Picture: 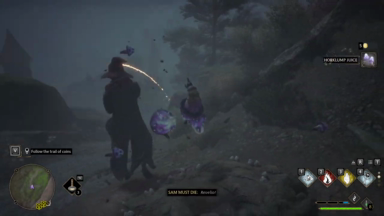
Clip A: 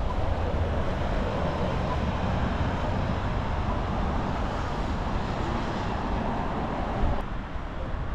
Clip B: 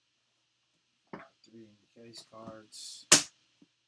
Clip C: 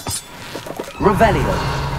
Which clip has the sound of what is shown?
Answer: C